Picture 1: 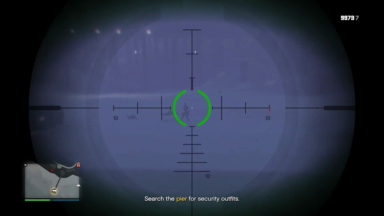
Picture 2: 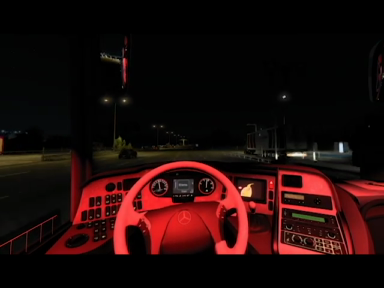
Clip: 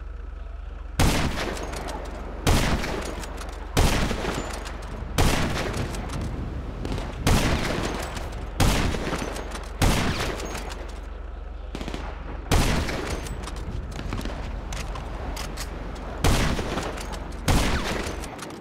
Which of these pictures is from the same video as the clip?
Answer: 1